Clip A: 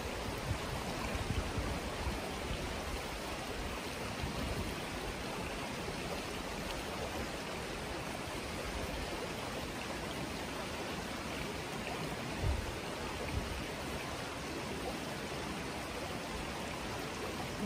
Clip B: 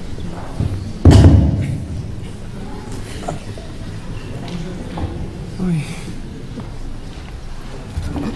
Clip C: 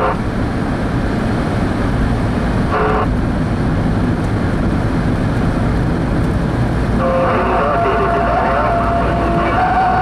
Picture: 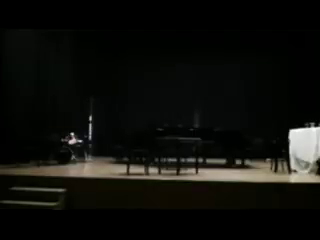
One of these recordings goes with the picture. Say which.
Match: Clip B